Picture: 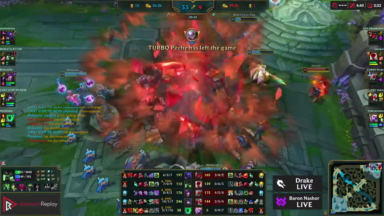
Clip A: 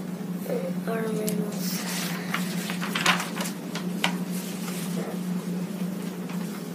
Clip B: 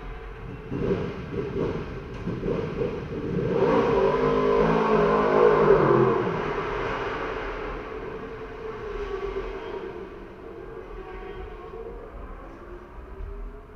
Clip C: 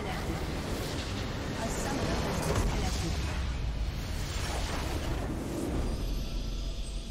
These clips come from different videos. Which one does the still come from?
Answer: C